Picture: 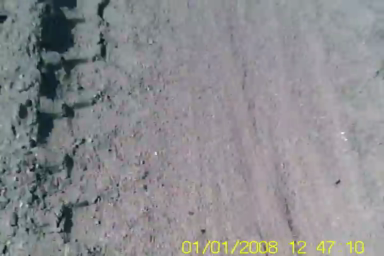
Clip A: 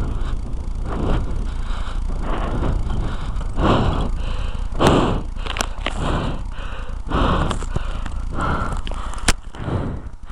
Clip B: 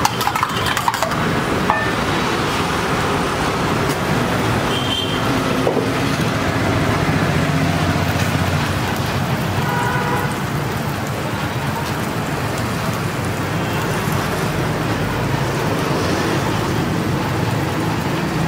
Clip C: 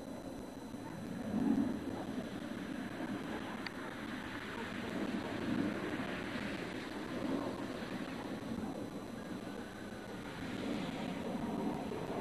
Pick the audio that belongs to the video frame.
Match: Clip A